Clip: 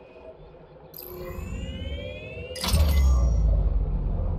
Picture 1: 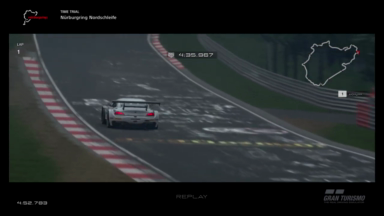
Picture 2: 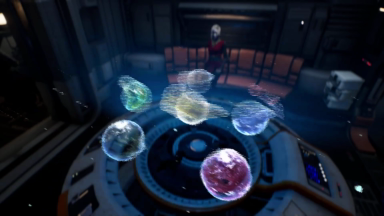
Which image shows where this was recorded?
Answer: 2